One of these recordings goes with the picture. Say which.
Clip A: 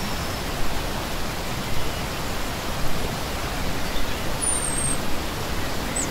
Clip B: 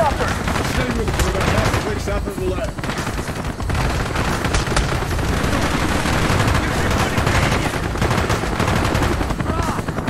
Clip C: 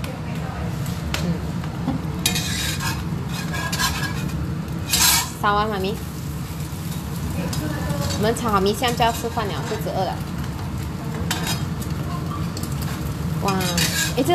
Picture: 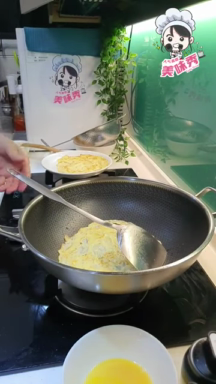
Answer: C